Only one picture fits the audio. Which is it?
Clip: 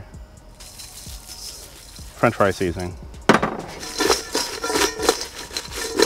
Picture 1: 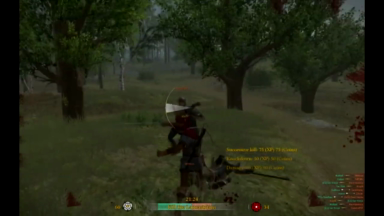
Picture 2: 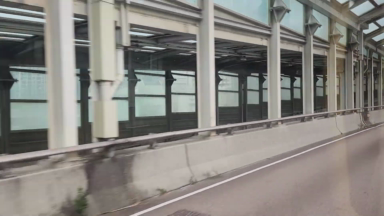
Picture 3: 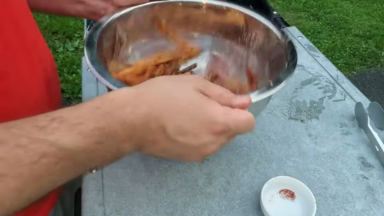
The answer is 3